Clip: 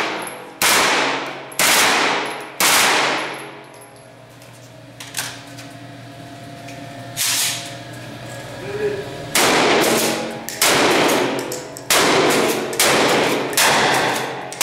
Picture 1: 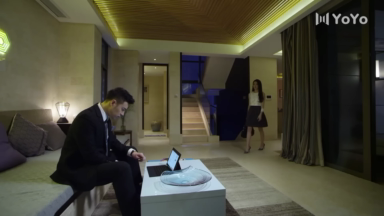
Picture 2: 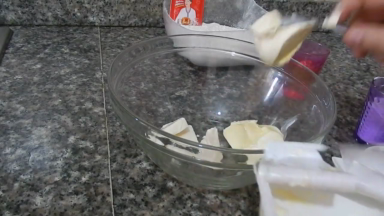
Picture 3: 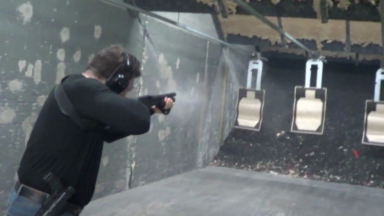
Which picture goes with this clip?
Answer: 3